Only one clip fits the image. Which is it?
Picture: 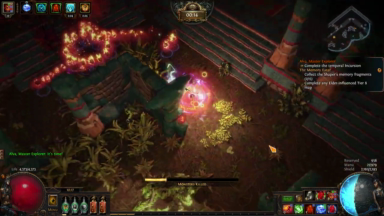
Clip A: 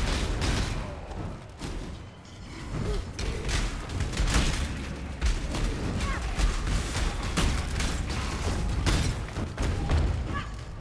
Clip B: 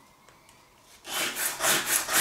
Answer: A